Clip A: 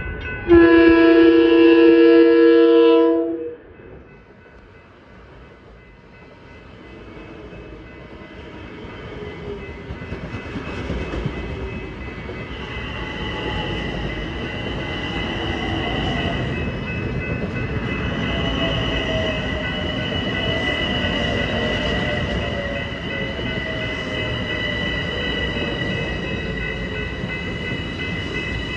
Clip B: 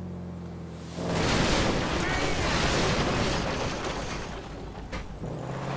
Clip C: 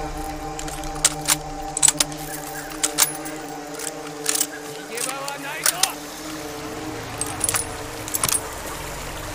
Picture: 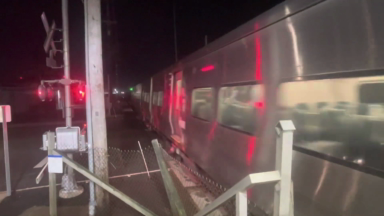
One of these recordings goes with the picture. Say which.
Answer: A